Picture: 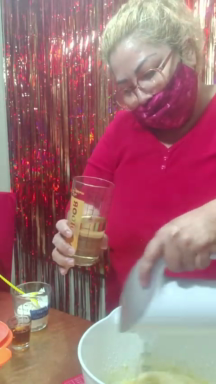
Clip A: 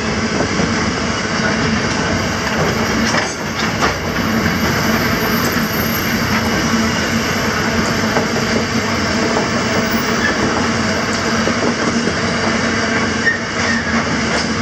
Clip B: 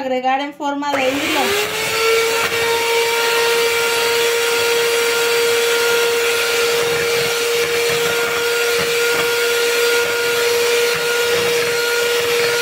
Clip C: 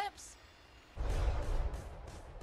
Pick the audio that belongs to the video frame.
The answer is B